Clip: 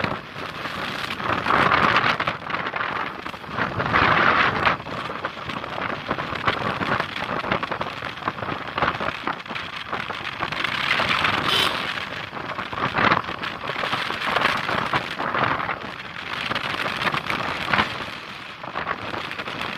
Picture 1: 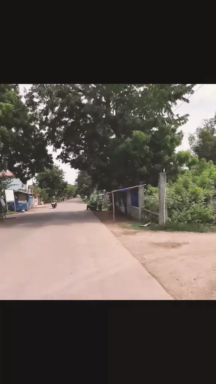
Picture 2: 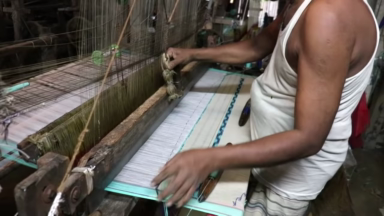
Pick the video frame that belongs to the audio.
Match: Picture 1